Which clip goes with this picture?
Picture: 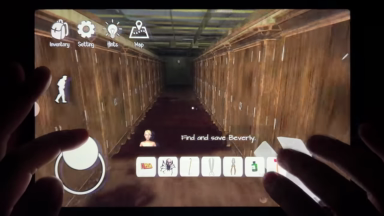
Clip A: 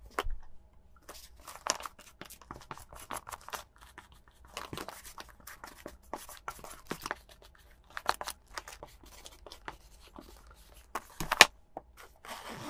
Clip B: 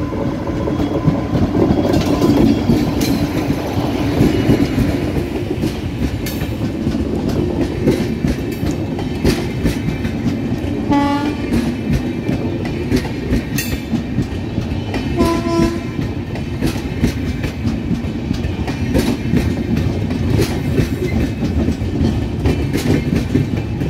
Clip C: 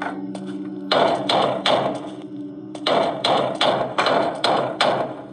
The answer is C